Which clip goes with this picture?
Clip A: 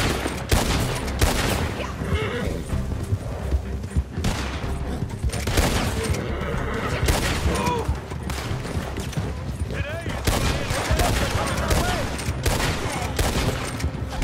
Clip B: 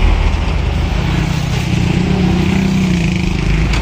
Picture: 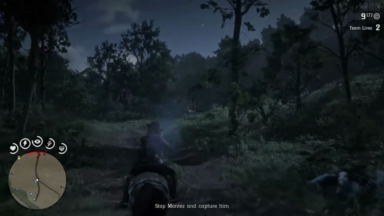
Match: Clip A